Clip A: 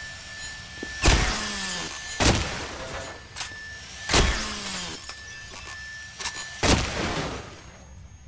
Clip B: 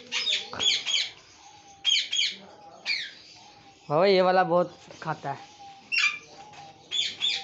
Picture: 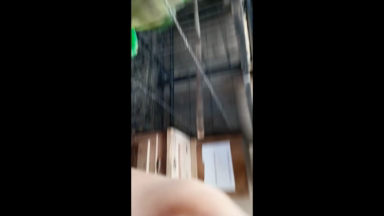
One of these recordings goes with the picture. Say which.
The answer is B